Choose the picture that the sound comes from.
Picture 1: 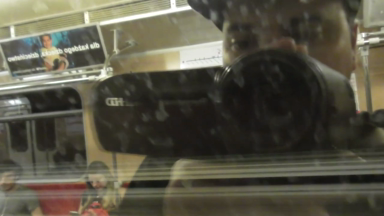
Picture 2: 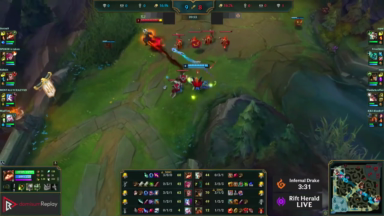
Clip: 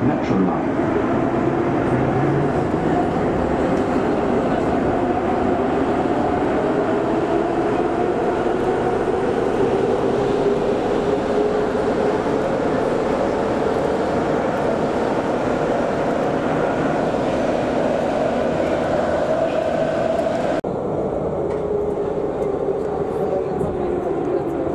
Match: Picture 1